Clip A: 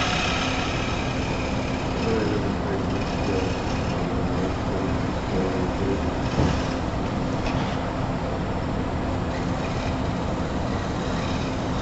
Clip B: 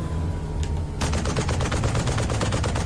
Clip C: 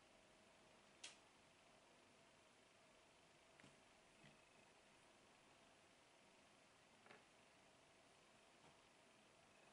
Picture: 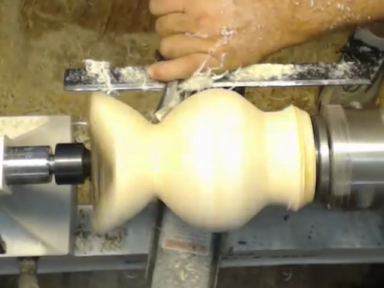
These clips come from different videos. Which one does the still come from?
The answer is A